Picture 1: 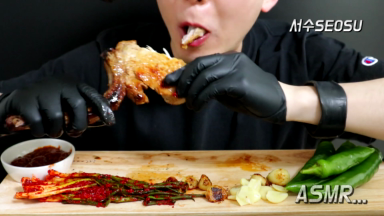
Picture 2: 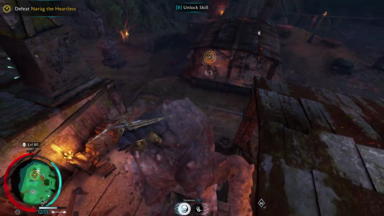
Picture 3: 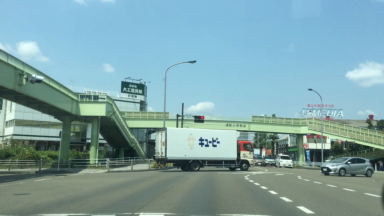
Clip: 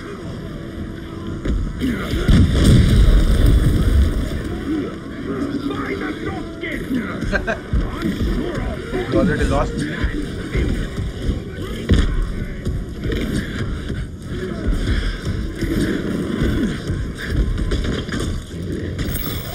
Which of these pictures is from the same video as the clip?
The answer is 2